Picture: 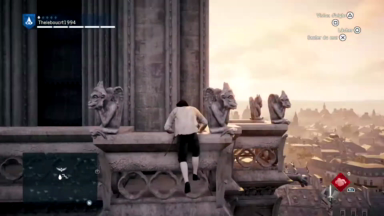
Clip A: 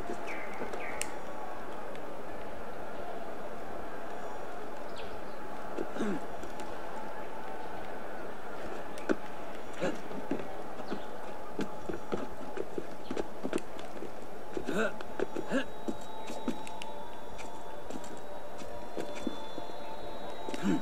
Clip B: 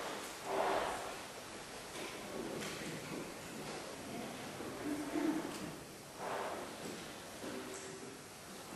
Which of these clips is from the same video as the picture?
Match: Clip A